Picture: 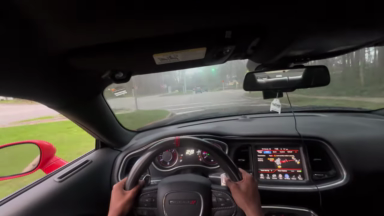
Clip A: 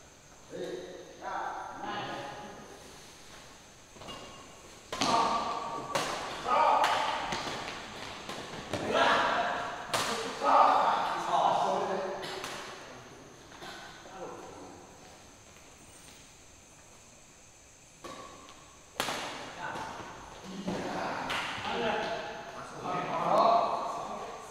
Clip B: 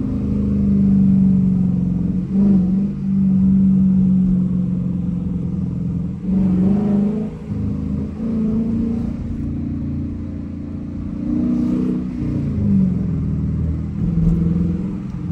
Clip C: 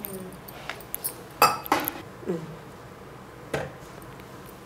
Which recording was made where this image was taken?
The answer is B